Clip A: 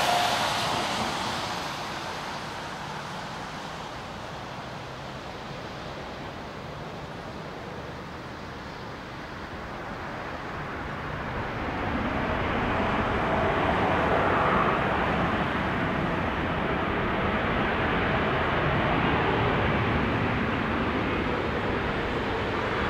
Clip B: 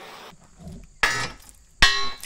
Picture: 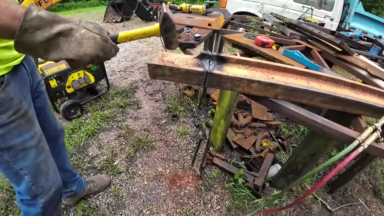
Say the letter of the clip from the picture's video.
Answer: B